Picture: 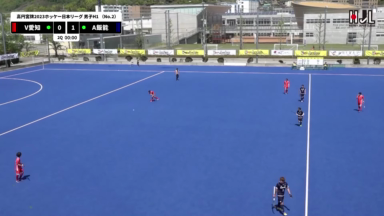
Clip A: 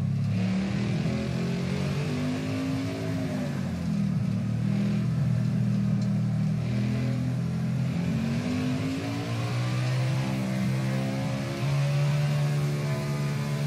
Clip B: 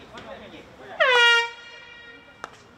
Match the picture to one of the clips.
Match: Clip B